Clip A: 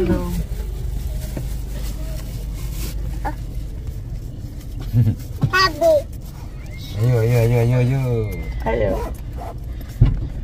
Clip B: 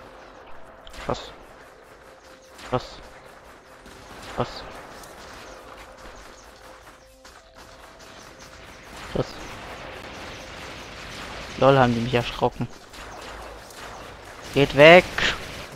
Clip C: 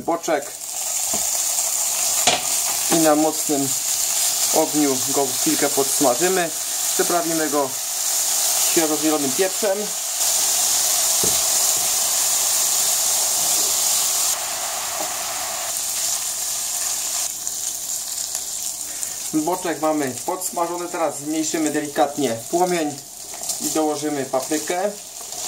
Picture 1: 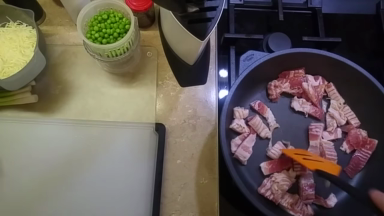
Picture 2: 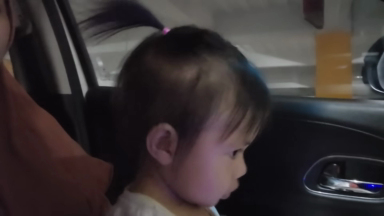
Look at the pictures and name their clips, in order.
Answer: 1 C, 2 A